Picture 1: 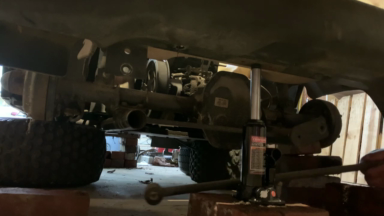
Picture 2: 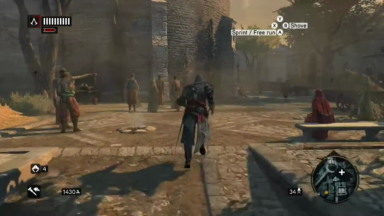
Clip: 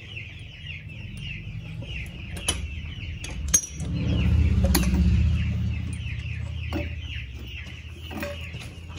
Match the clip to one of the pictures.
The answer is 1